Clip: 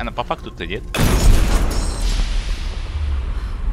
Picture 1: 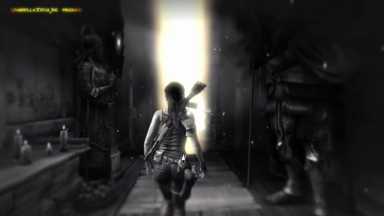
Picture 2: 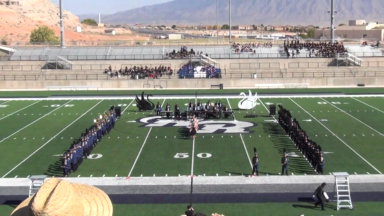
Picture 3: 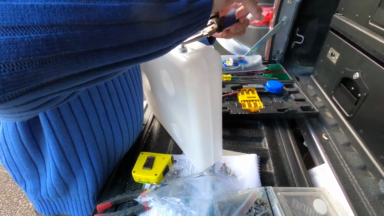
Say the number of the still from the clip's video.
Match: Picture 1